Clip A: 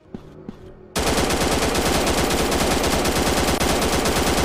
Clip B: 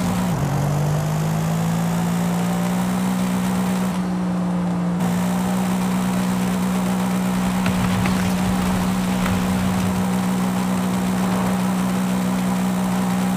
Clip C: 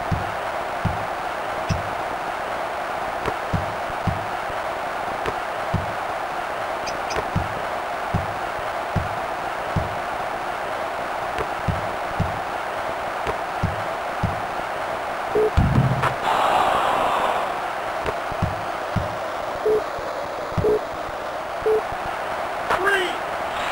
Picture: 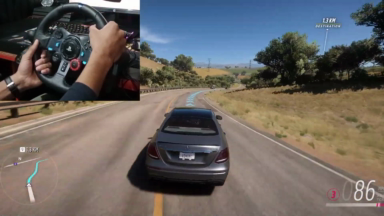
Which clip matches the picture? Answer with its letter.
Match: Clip B